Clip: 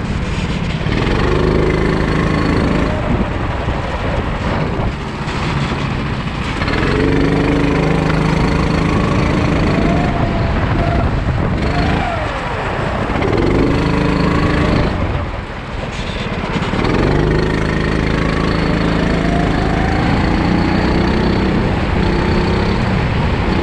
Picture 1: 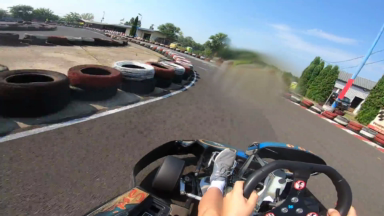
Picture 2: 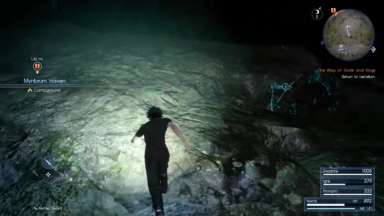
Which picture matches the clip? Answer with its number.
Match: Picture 1